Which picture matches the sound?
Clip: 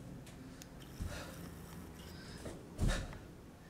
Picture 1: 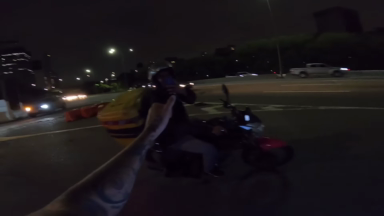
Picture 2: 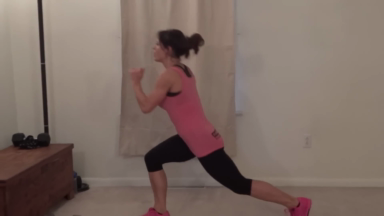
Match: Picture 2